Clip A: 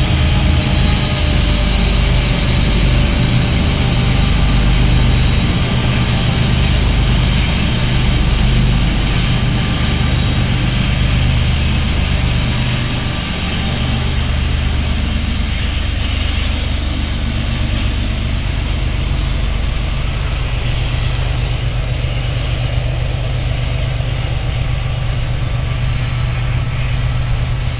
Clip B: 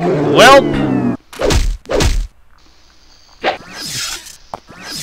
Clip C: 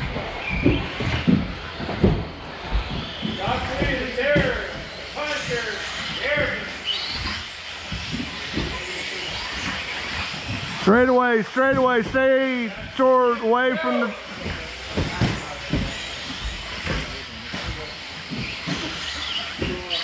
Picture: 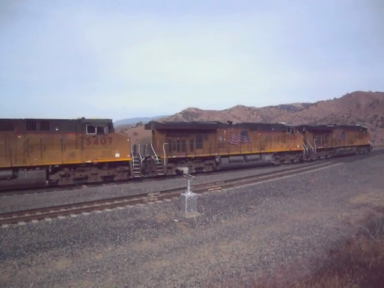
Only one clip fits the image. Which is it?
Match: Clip A